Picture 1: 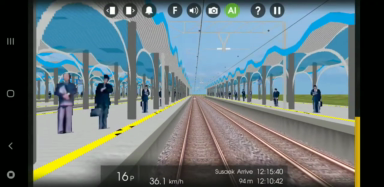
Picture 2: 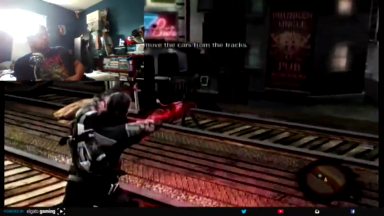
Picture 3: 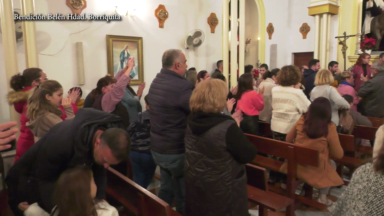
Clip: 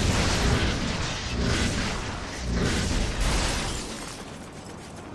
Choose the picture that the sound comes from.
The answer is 2